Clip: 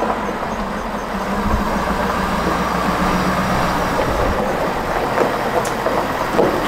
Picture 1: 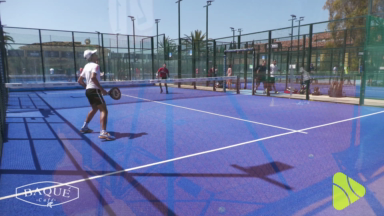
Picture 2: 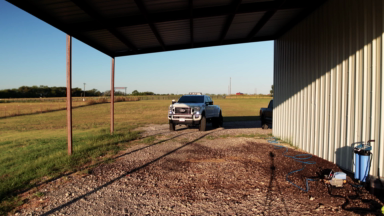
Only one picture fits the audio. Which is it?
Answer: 2